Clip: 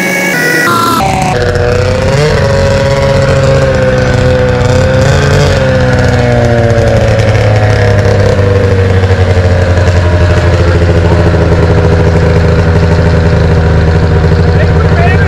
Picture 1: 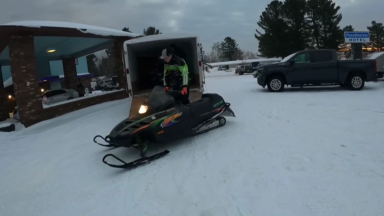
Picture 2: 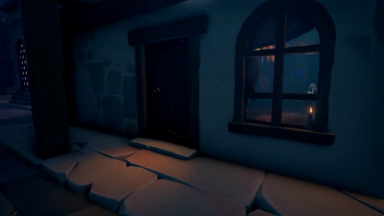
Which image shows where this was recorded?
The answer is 1